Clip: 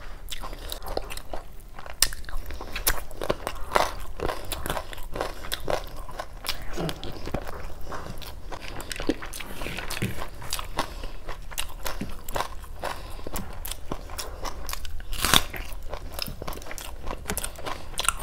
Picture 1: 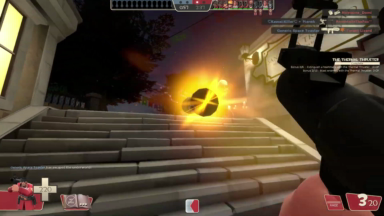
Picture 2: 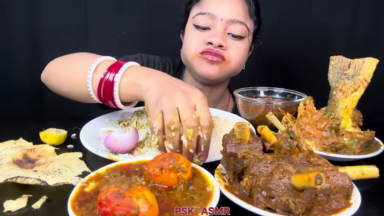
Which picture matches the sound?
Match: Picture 2